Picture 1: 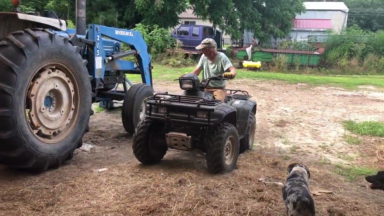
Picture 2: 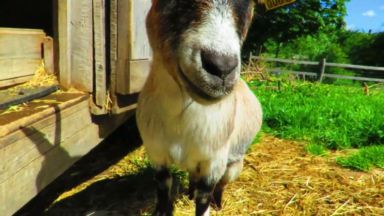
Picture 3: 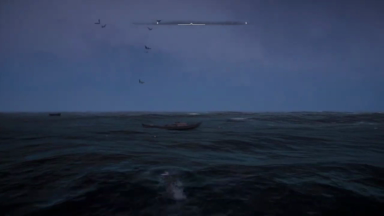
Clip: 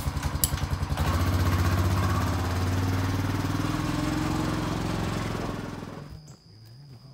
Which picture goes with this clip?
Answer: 1